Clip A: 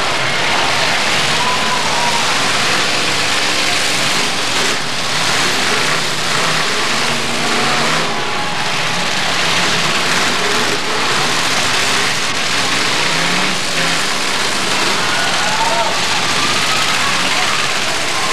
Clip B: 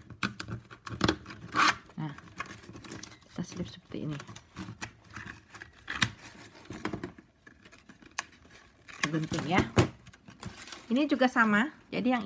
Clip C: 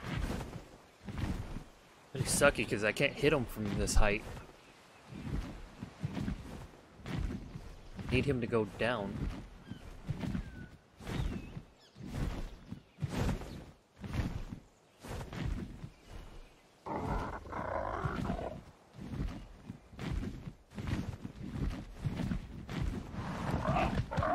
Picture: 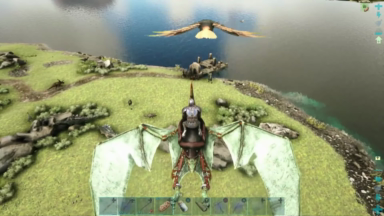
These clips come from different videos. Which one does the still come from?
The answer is C